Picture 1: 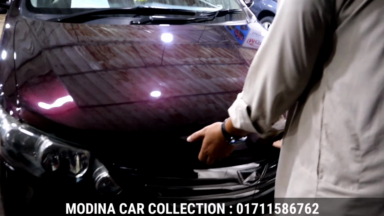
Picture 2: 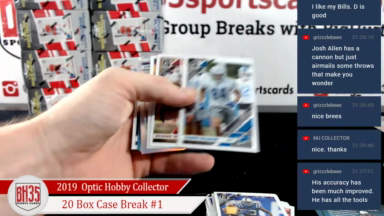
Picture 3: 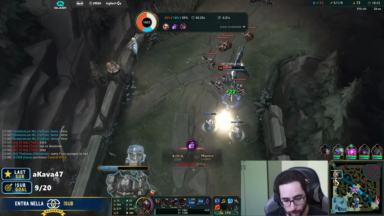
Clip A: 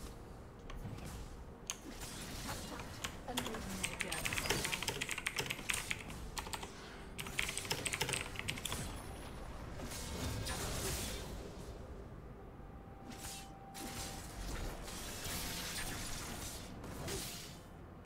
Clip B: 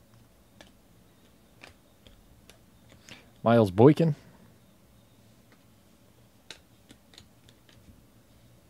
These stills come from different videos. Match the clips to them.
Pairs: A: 3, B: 2